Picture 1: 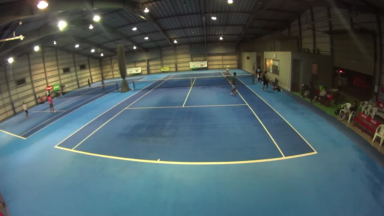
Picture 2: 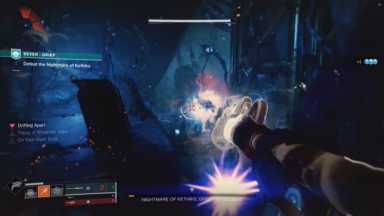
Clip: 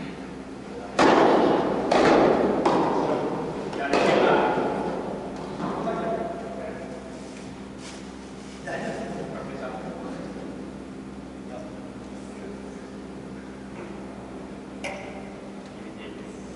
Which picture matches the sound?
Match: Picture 1